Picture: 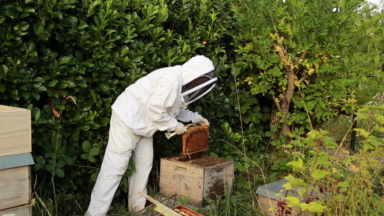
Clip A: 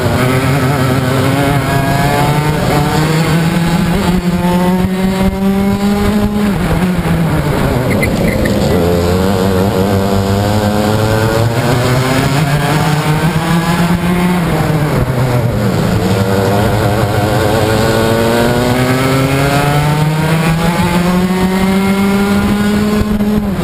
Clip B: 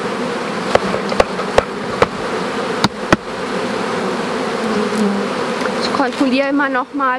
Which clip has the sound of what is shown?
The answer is B